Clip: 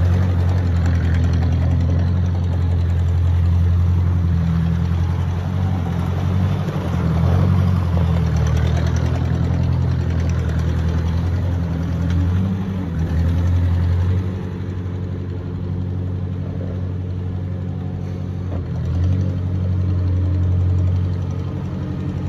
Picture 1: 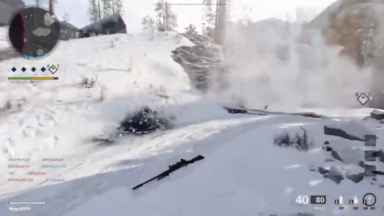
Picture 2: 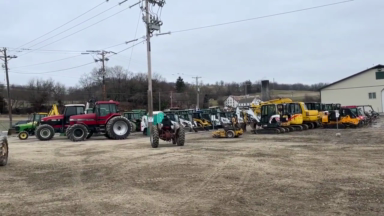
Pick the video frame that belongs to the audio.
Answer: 2